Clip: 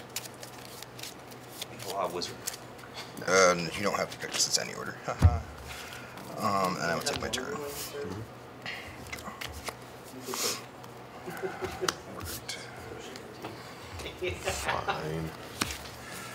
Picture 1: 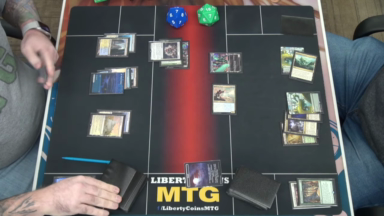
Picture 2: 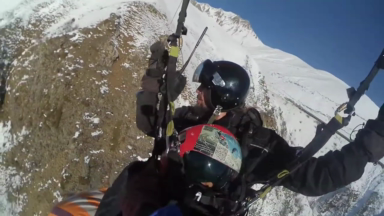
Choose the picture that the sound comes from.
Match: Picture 1